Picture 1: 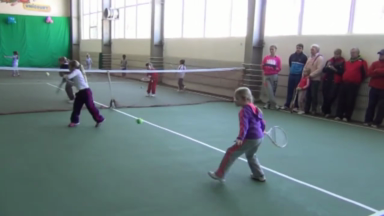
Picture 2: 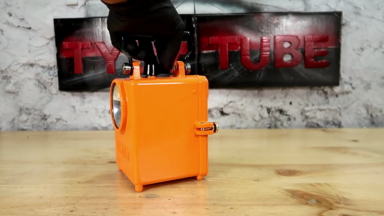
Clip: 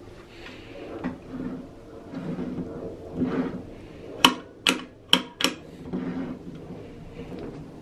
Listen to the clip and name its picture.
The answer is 2